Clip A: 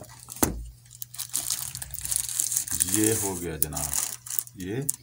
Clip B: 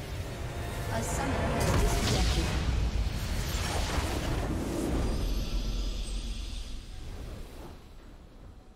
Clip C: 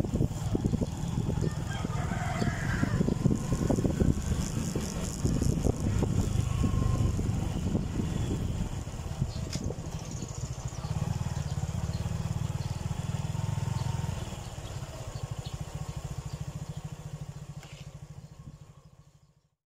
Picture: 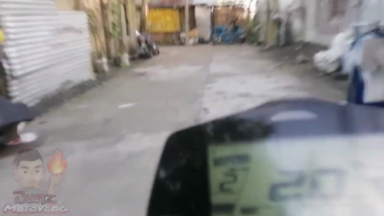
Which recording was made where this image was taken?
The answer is C